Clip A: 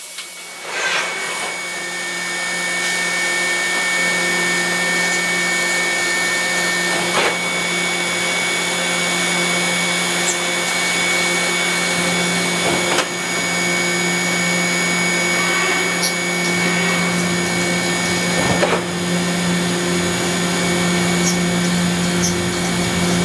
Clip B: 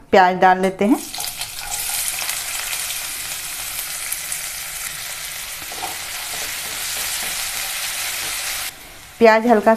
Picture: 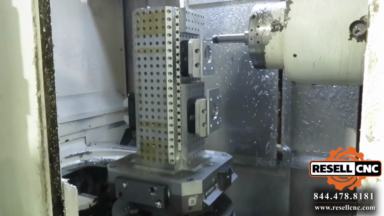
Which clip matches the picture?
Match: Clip A